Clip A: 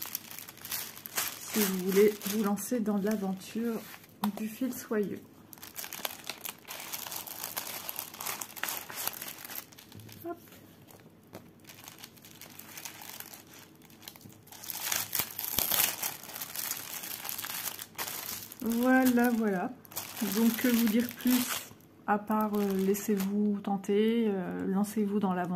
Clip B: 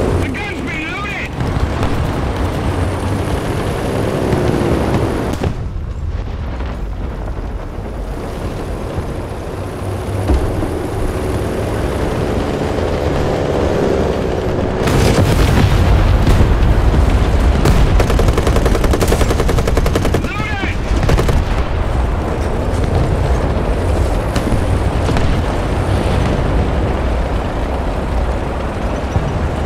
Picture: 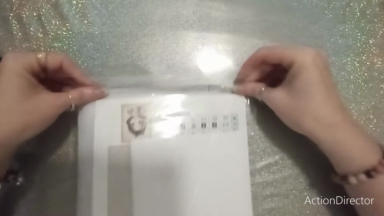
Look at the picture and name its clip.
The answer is A